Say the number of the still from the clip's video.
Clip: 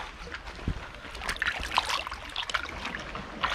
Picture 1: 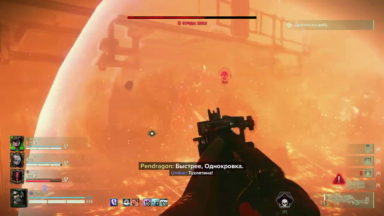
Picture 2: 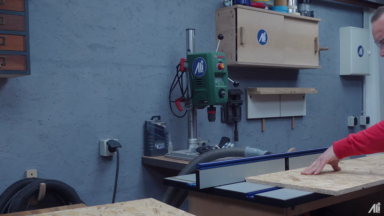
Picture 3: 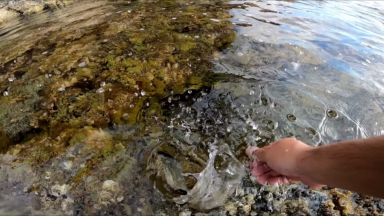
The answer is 3